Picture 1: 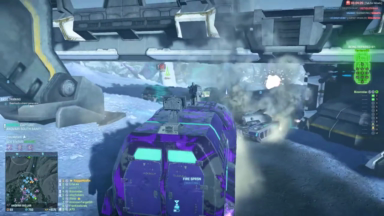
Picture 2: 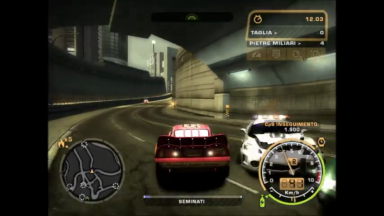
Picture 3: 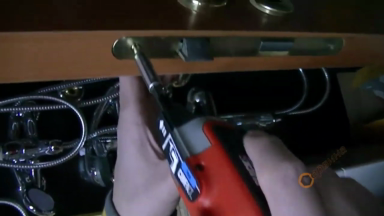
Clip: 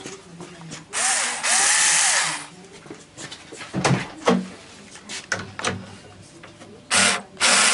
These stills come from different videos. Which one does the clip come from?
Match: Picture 3